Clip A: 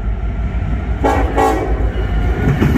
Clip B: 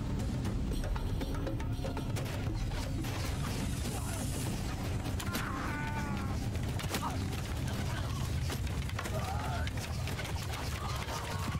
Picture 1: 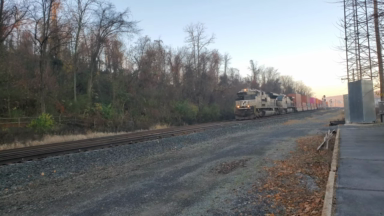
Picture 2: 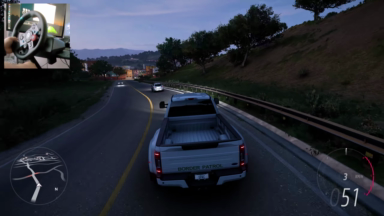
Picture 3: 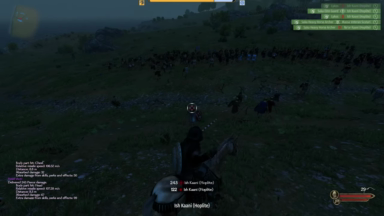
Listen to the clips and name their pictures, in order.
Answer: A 1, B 3